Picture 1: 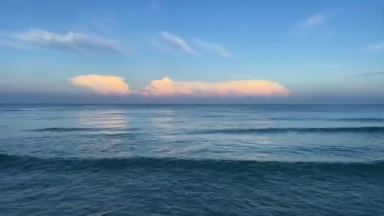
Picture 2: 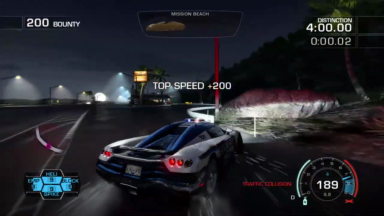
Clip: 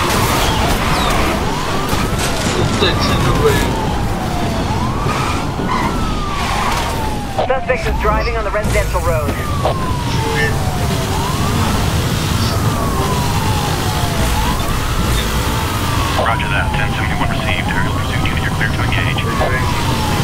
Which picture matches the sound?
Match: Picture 2